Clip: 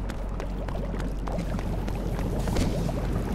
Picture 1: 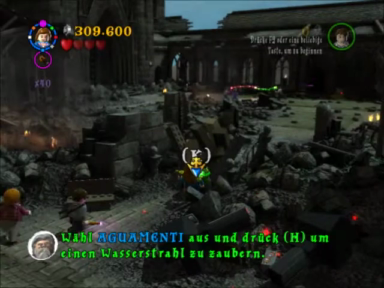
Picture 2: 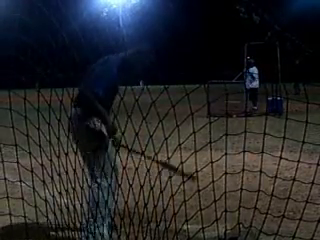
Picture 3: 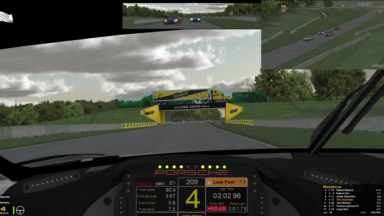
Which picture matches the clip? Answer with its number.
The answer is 1